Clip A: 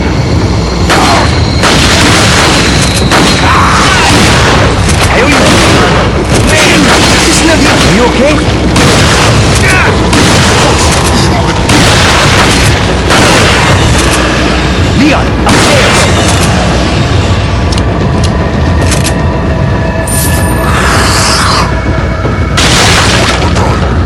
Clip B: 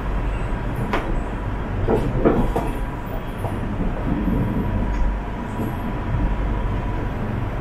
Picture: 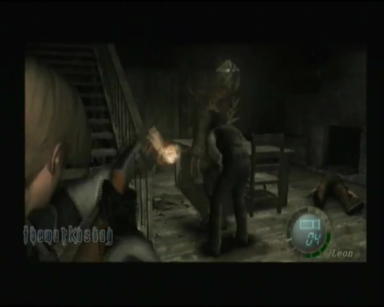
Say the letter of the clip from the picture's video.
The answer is A